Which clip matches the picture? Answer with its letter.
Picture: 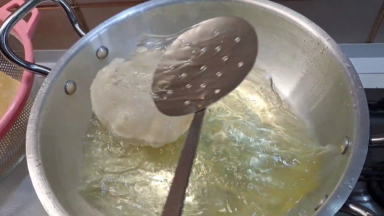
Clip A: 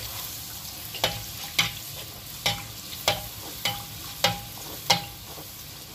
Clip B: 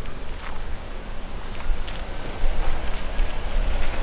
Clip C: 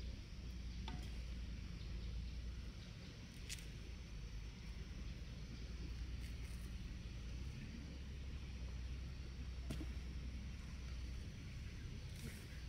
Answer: A